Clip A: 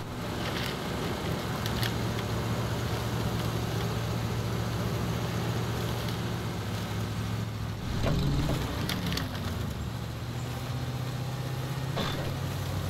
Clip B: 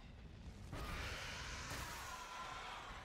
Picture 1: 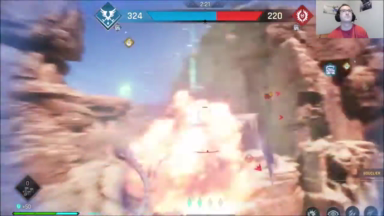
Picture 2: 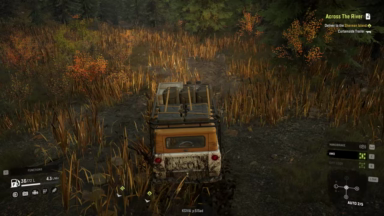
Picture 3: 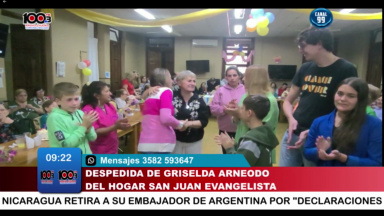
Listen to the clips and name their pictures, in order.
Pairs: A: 2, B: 1